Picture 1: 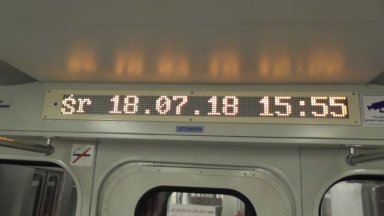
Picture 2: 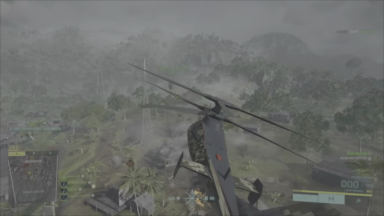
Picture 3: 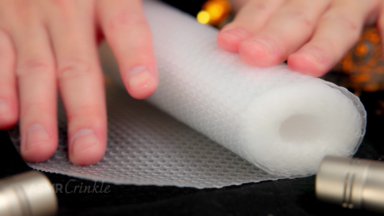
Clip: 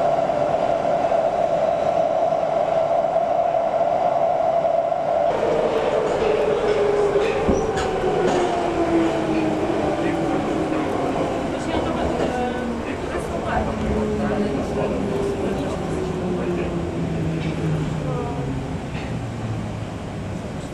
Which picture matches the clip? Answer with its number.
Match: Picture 1